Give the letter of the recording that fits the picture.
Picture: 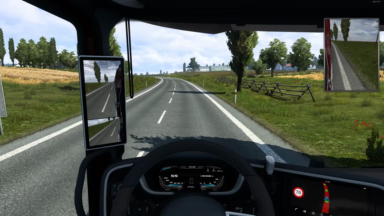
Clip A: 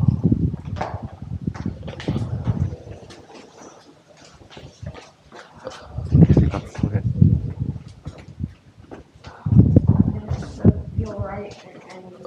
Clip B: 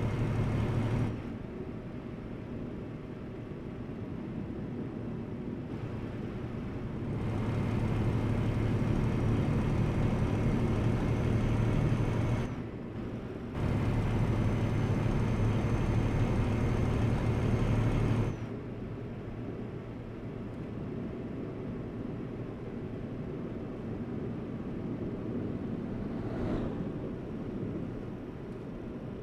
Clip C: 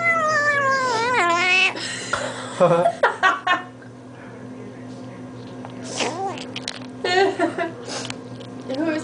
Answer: B